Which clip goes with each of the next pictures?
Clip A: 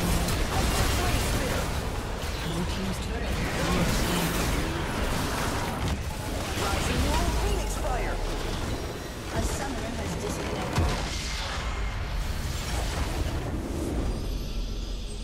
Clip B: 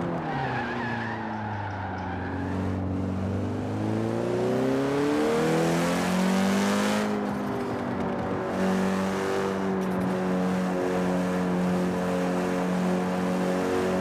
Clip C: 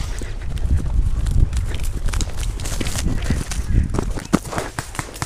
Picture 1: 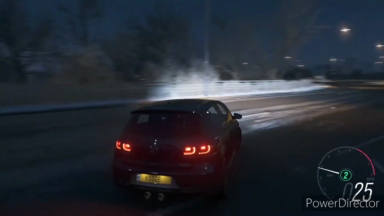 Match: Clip B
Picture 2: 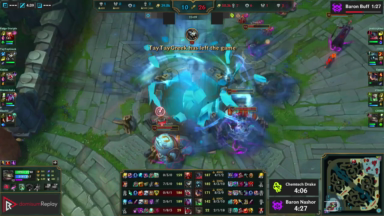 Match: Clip A